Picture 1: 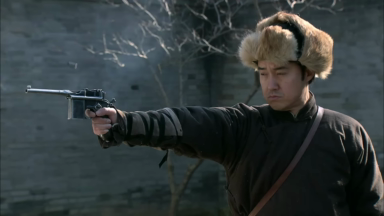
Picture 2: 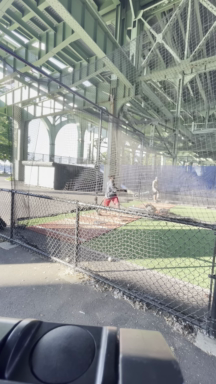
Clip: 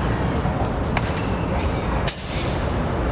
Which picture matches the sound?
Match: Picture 2